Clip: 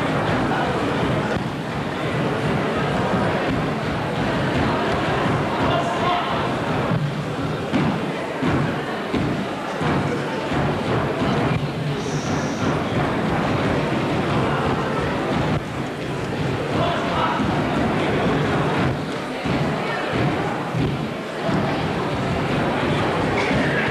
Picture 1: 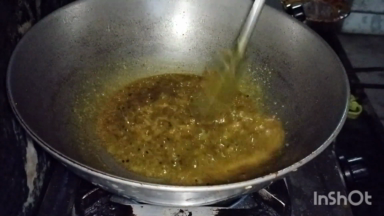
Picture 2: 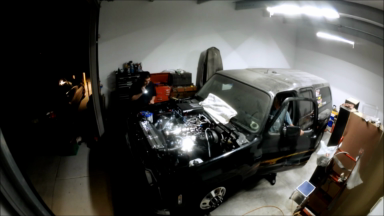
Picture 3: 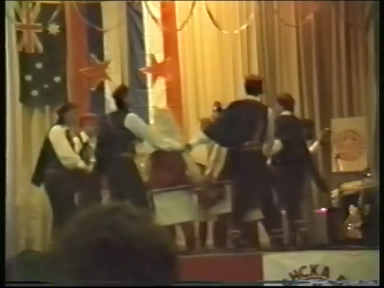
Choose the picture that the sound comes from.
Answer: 3